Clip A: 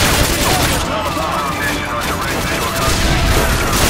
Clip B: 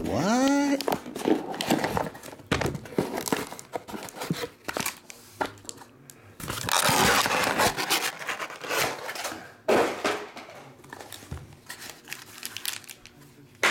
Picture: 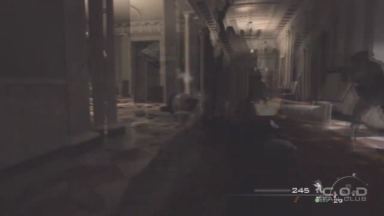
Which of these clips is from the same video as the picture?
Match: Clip A